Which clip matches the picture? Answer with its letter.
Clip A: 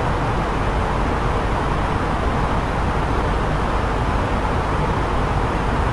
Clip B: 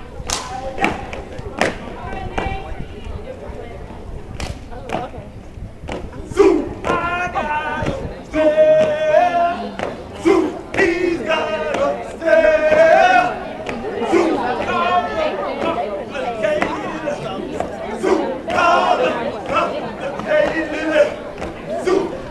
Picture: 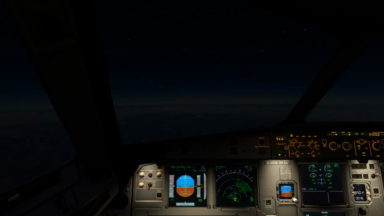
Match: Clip A